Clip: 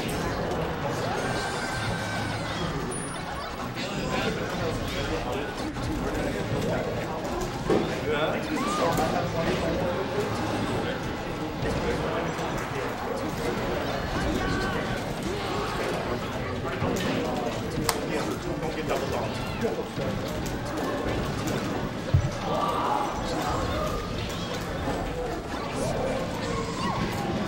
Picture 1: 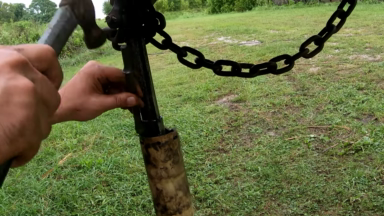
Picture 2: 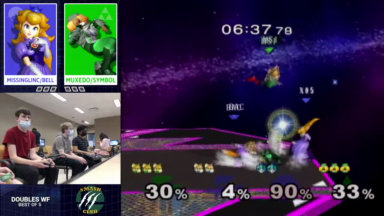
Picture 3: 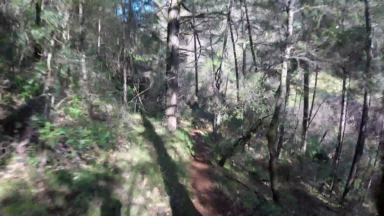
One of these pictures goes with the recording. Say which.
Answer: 2